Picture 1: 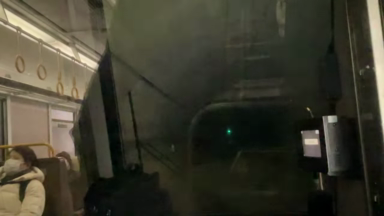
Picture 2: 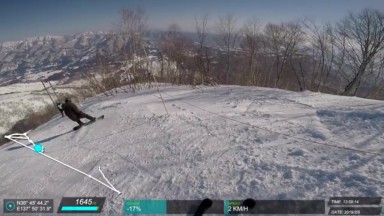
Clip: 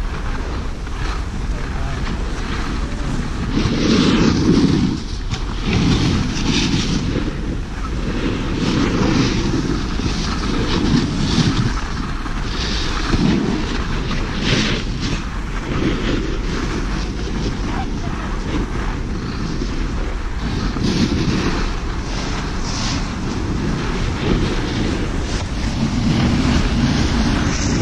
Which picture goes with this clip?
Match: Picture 2